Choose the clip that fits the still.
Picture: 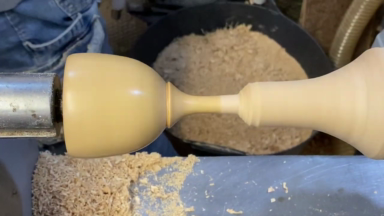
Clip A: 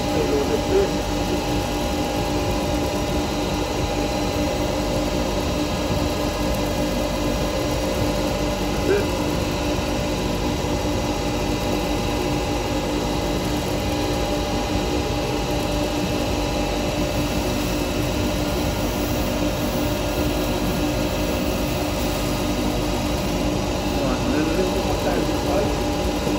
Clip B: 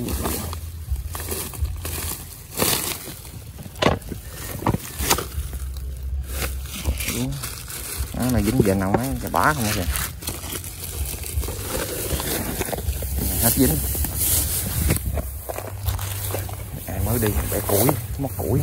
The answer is A